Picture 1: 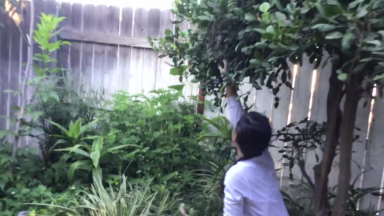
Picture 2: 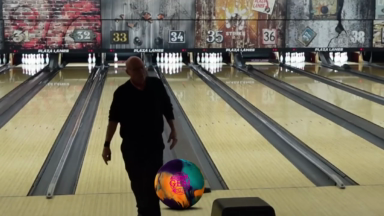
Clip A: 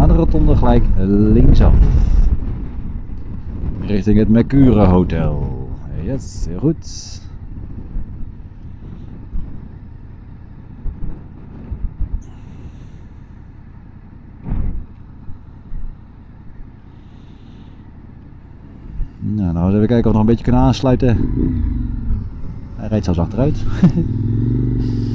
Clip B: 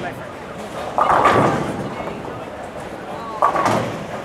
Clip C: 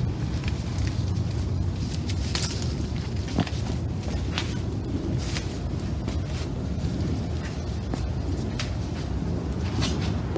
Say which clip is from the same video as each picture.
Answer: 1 C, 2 B